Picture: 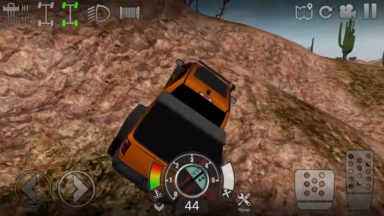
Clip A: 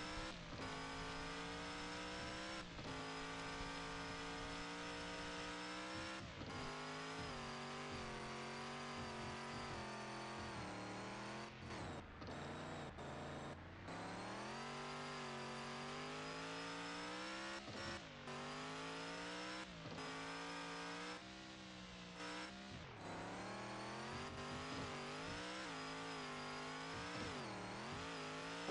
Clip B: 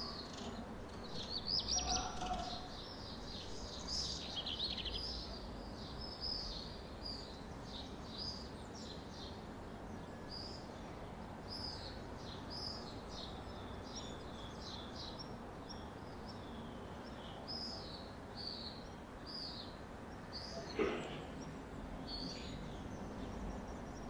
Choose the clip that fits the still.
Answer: A